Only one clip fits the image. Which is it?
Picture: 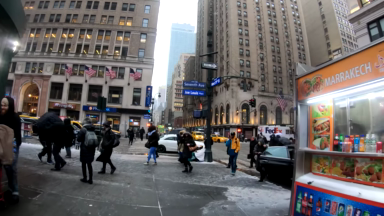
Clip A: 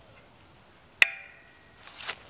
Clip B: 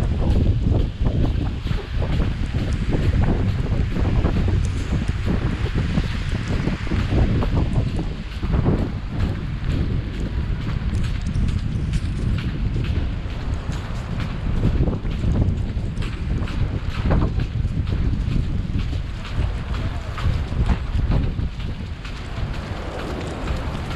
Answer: B